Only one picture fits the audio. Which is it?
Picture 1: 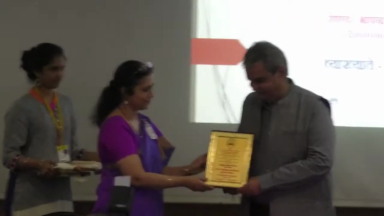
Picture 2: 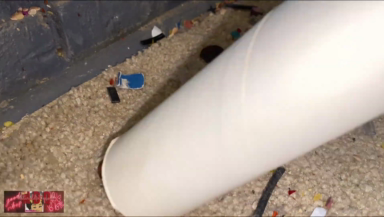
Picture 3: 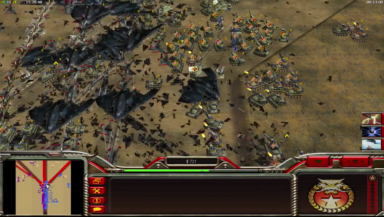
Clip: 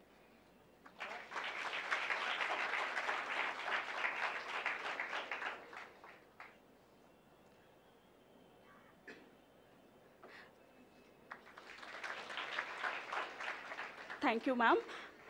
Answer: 1